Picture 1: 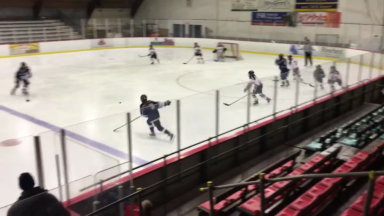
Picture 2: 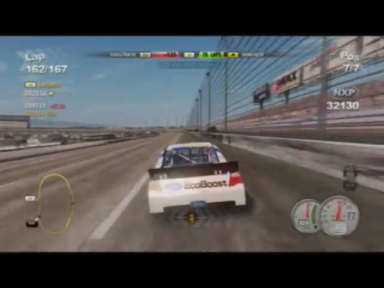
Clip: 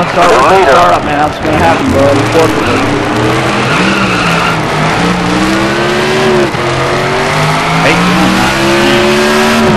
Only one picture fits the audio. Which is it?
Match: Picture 2